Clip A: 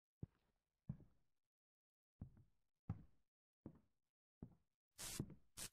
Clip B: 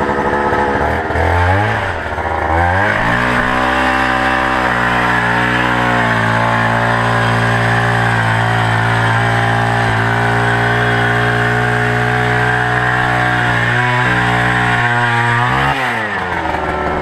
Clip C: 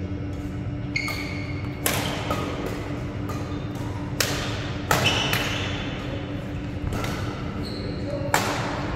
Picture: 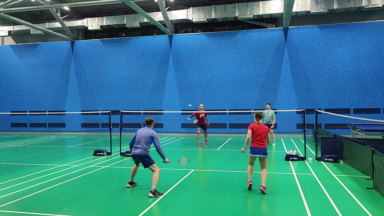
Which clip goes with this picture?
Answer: C